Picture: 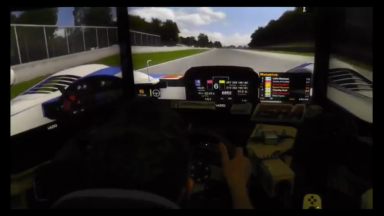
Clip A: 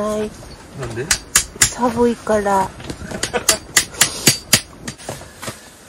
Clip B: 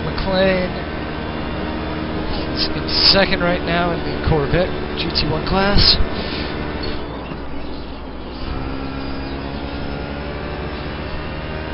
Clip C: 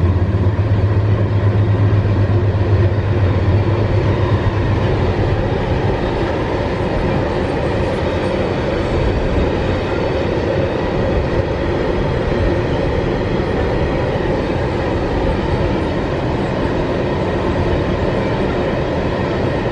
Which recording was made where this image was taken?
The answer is B